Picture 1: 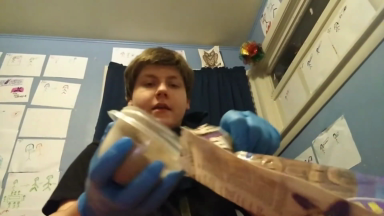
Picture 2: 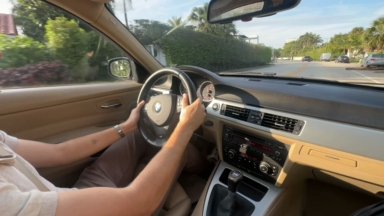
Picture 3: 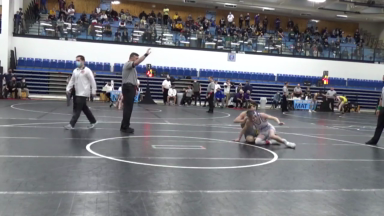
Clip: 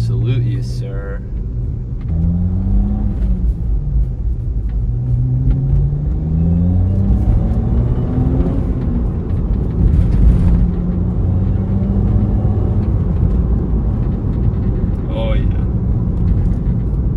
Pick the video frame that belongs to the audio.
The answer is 2